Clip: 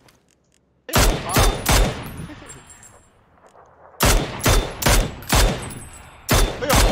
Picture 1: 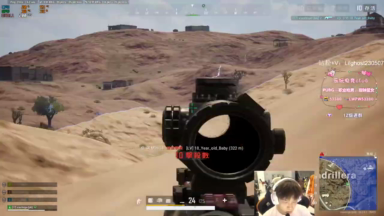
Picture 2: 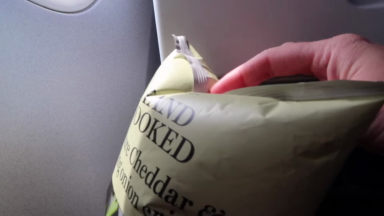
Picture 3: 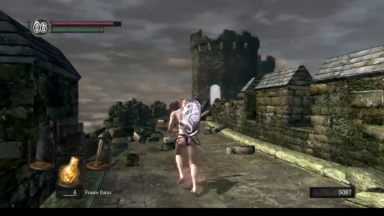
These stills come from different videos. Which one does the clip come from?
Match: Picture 1